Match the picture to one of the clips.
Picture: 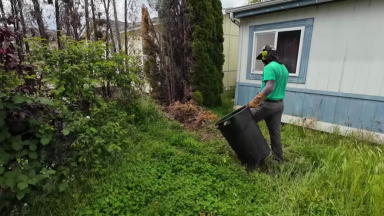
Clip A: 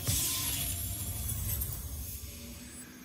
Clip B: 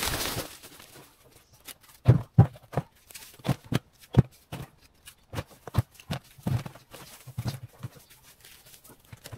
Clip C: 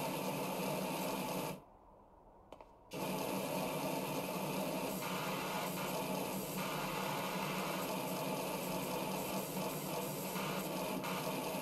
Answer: B